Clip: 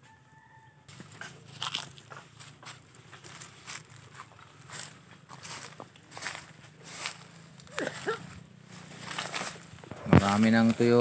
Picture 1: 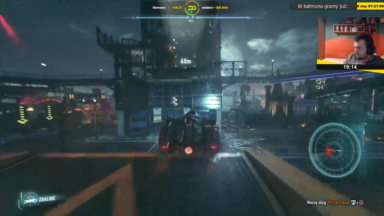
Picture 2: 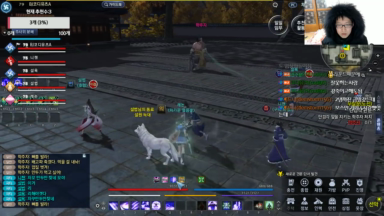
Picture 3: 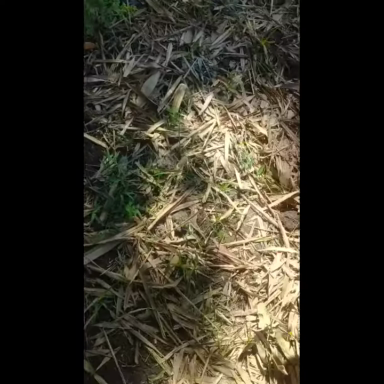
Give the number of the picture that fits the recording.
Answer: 3